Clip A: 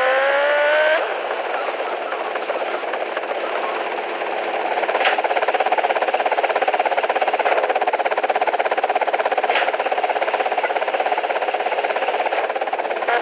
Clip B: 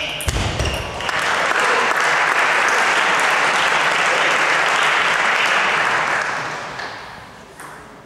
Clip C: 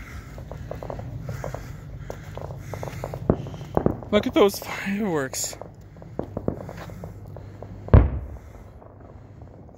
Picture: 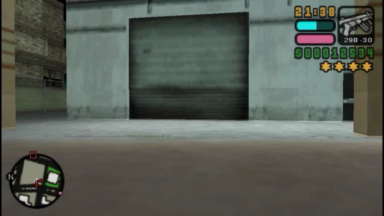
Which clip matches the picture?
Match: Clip A